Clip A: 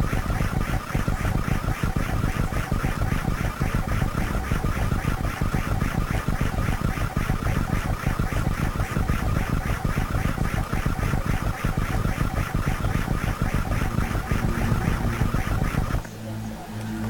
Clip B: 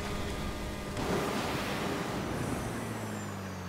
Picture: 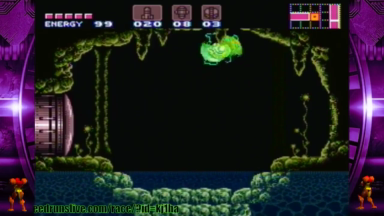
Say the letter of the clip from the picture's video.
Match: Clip A